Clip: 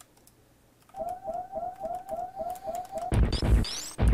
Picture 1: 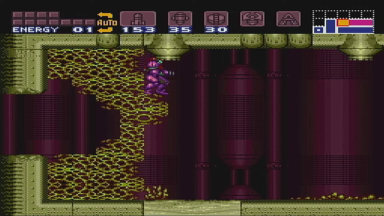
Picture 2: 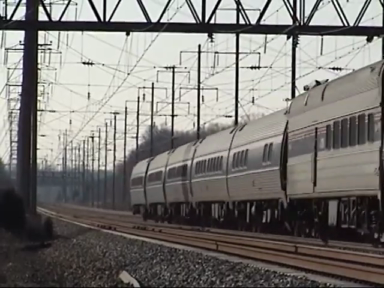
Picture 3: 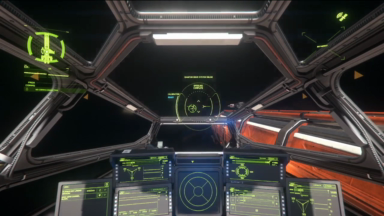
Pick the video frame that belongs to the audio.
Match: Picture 1